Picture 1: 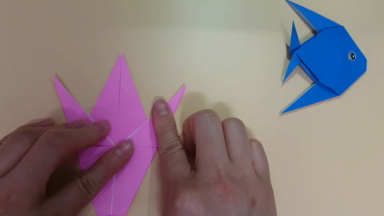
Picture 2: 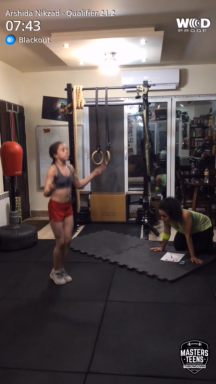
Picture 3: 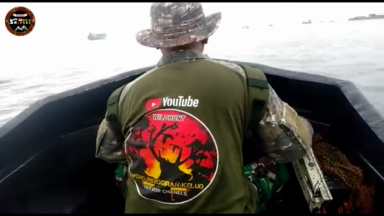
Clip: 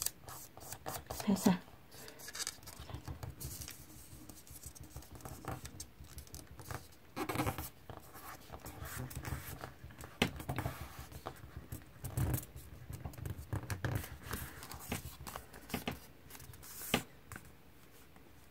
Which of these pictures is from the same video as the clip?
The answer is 1